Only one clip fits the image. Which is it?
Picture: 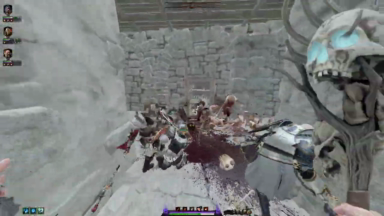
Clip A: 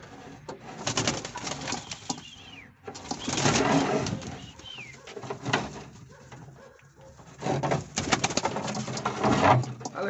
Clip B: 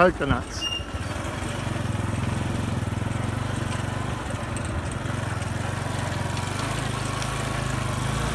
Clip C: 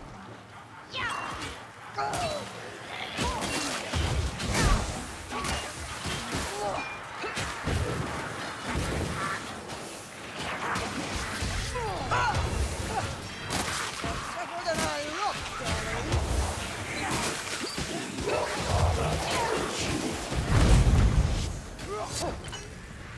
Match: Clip C